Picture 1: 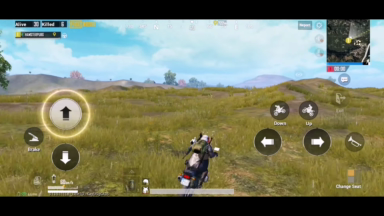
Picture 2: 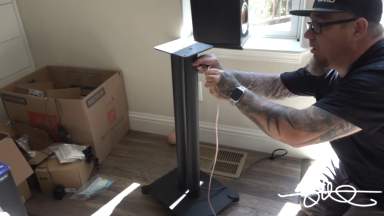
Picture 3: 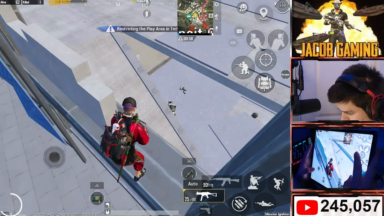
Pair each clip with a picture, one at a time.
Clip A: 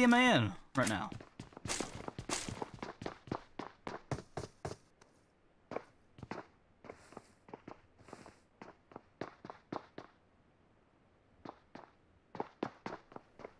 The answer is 3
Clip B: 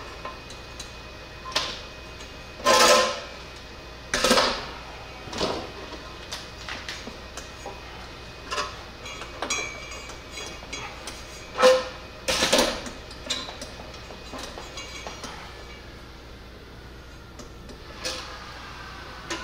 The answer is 2